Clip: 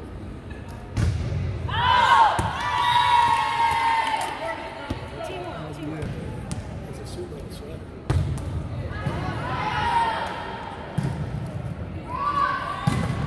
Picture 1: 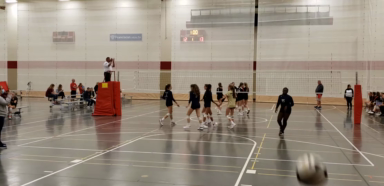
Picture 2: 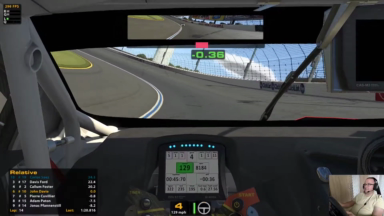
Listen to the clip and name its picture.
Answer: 1